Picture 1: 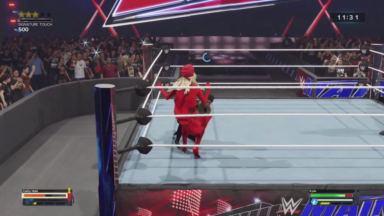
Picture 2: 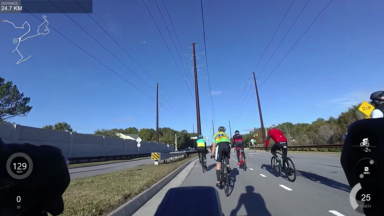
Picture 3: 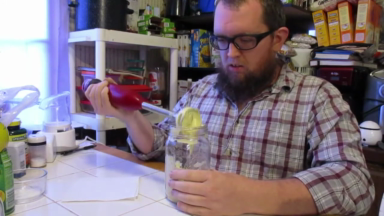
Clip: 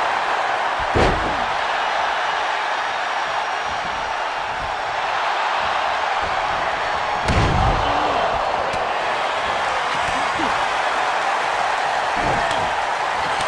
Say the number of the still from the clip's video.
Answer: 1